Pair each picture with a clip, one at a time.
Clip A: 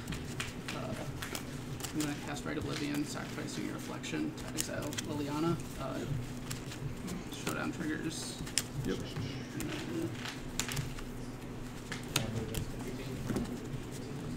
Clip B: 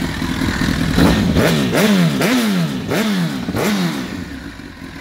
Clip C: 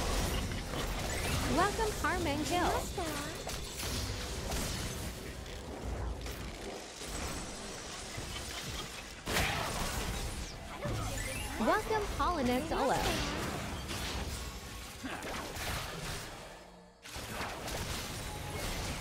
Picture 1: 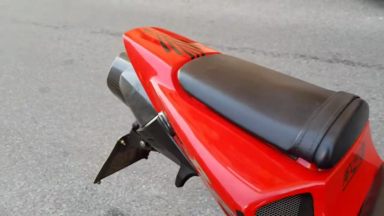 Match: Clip B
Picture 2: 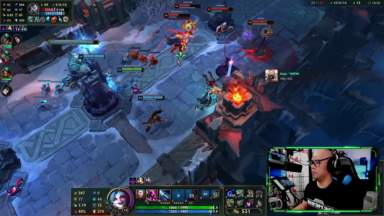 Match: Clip C